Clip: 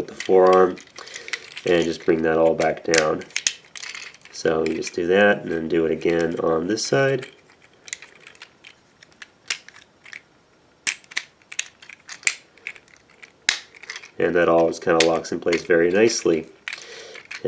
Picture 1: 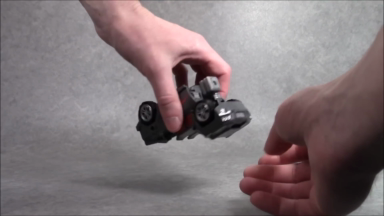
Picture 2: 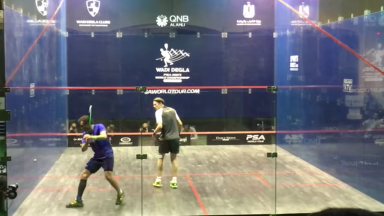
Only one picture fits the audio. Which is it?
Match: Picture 1